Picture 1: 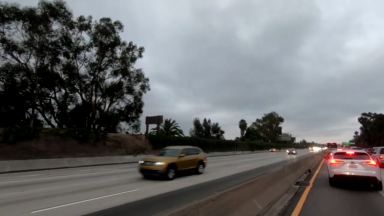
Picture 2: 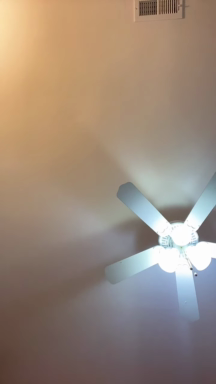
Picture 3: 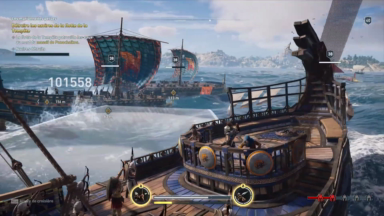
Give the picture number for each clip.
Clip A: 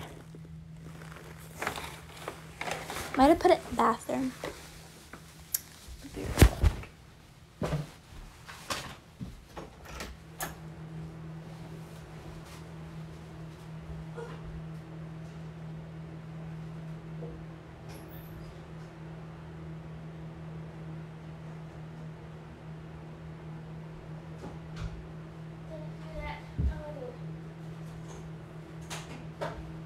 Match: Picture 2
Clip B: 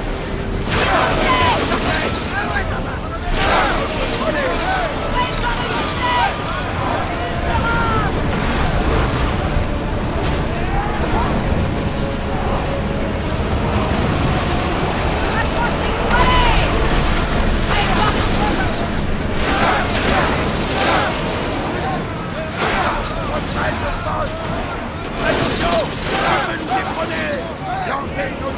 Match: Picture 3